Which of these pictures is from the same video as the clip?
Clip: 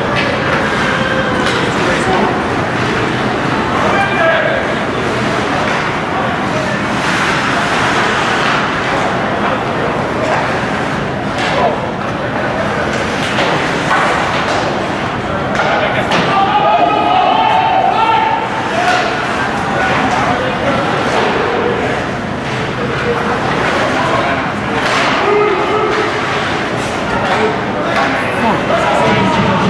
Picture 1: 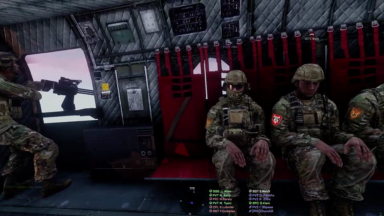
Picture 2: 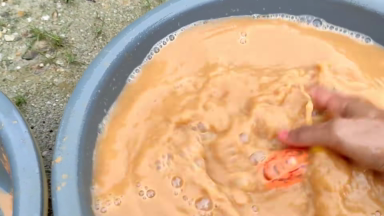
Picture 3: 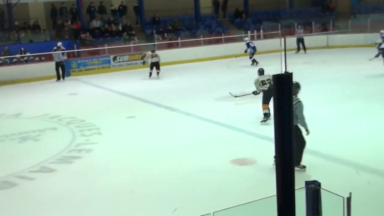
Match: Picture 3